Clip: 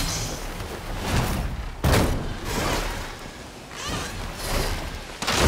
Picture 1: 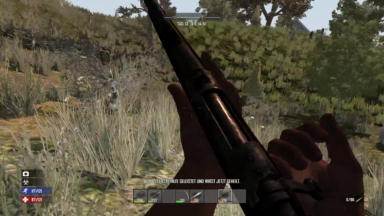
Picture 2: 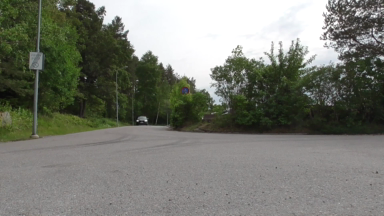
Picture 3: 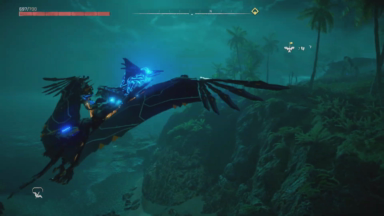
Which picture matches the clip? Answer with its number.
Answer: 3